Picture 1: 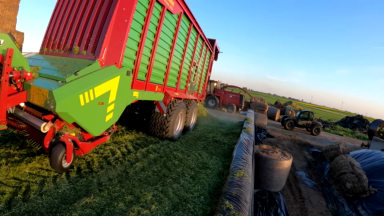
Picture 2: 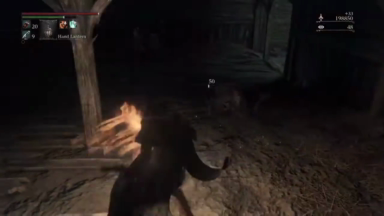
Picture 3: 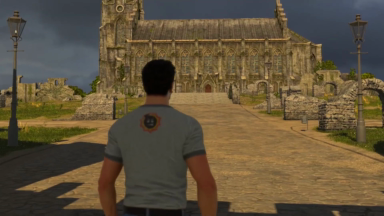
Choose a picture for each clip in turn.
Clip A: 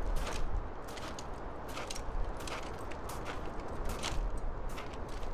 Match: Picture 3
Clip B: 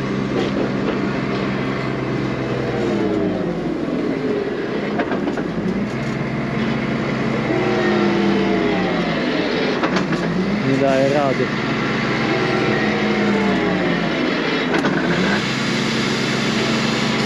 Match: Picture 1